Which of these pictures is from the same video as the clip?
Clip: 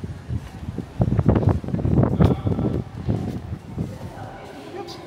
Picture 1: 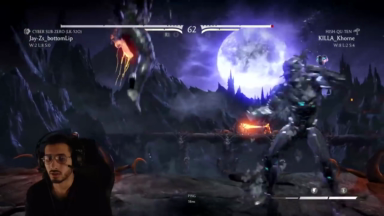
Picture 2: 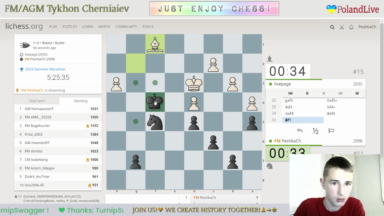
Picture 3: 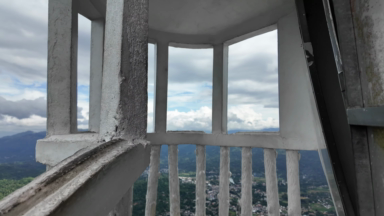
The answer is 3